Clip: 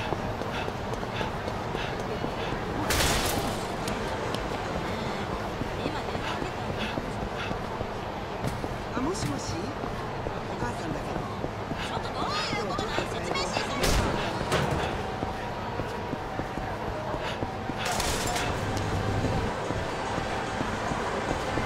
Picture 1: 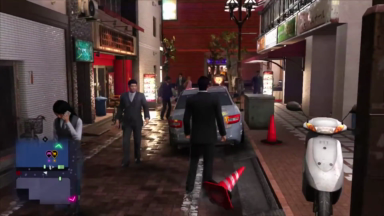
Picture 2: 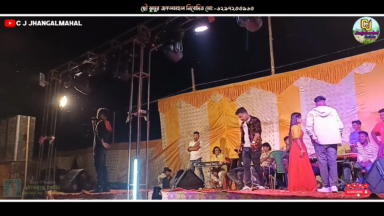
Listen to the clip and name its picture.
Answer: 1